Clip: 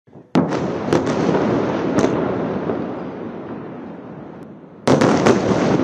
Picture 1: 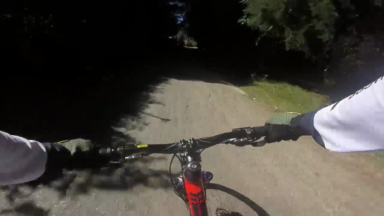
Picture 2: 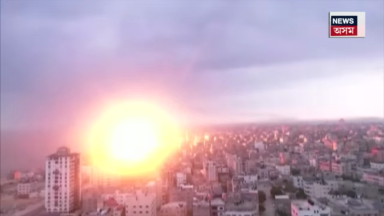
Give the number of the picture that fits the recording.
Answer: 2